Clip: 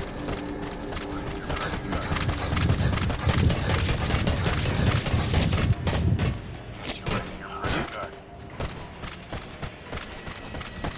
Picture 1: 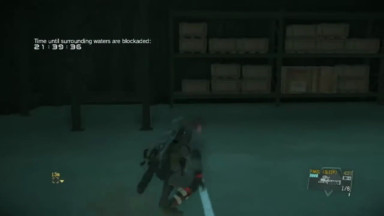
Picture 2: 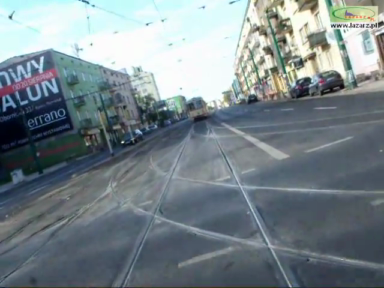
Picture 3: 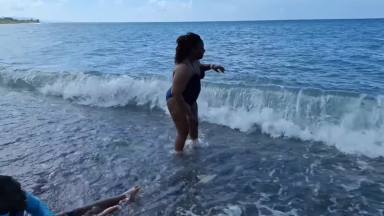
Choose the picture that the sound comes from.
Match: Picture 1